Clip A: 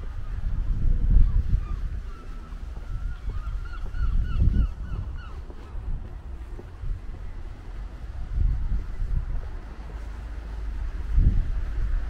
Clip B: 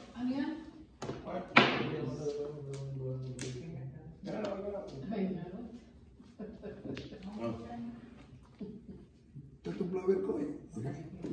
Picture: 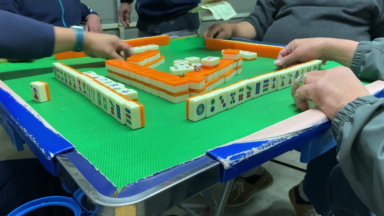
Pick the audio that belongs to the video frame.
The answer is B